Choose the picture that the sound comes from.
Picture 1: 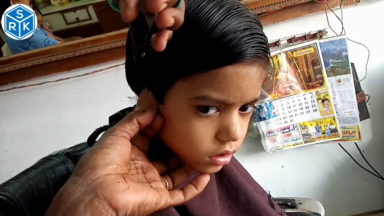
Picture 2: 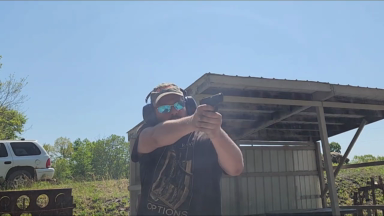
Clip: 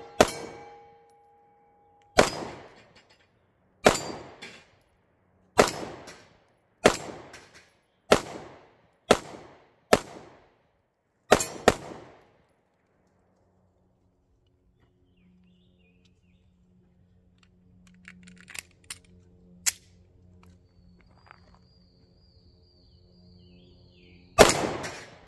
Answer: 2